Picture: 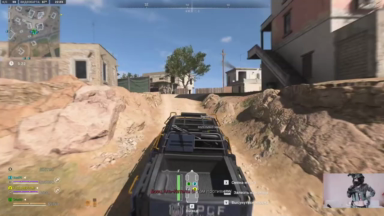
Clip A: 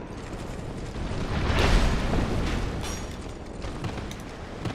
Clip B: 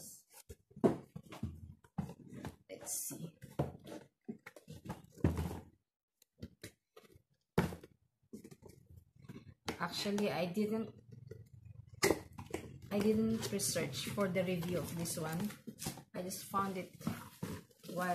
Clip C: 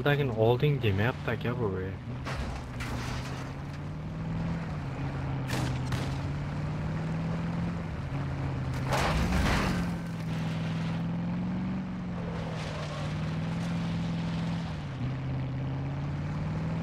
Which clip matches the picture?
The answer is C